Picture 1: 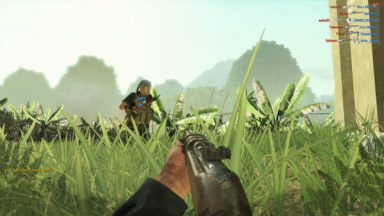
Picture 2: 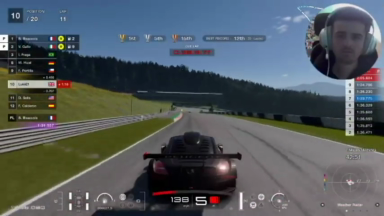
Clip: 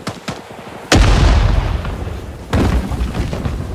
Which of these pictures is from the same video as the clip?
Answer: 1